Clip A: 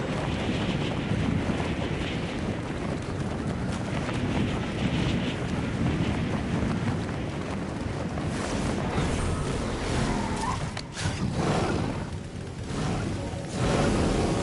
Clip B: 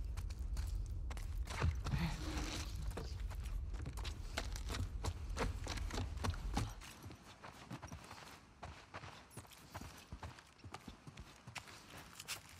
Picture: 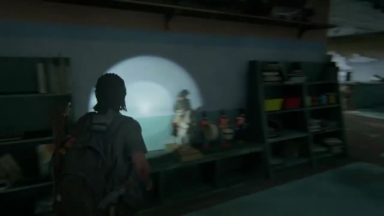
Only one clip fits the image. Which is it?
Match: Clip B